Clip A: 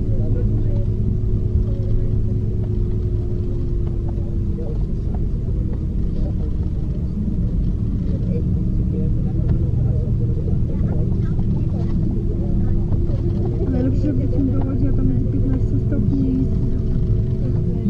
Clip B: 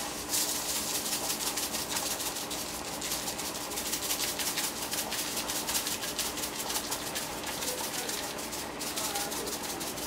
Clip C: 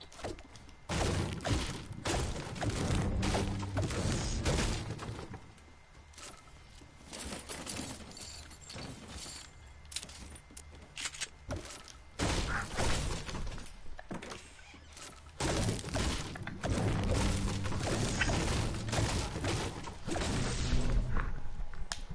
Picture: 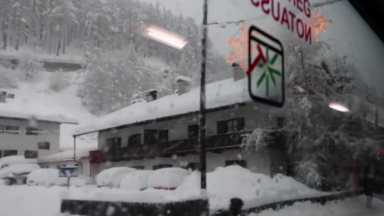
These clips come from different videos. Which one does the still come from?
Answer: A